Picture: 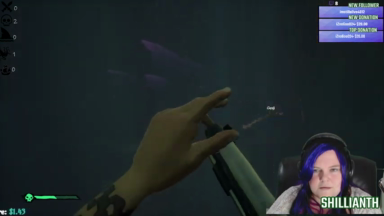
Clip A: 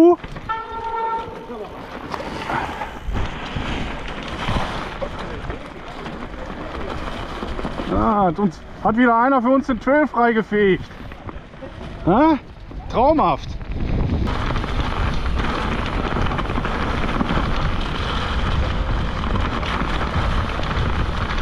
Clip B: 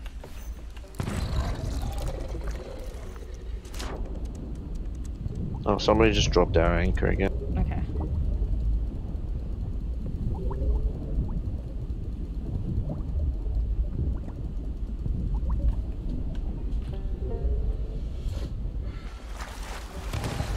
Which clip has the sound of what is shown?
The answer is B